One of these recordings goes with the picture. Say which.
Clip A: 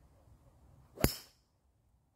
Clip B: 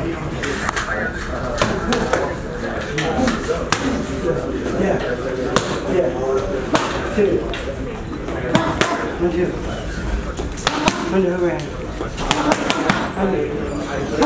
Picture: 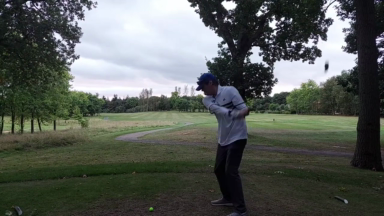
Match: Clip A